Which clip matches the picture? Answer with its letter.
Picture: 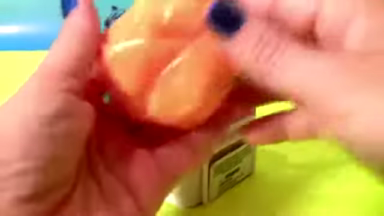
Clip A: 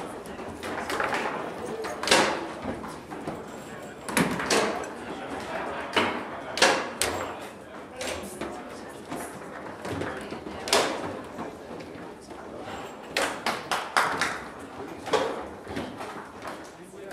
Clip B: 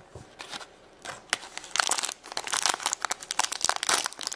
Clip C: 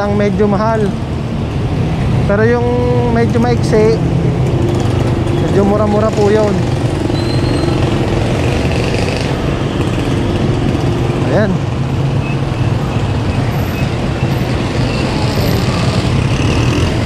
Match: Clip B